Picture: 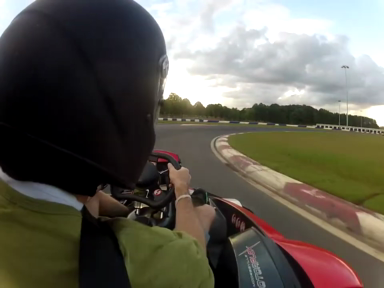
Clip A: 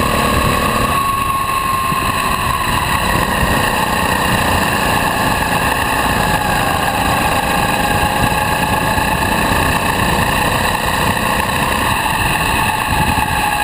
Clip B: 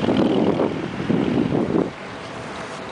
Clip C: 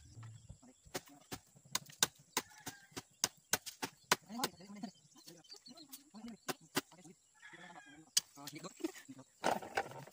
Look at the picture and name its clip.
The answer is A